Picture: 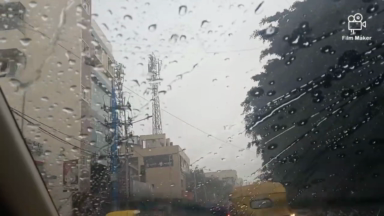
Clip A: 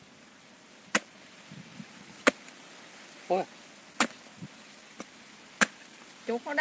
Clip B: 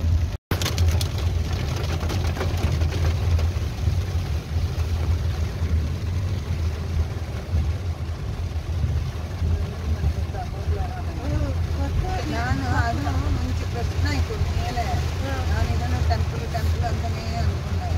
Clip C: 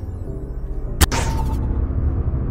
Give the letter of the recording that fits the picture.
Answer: B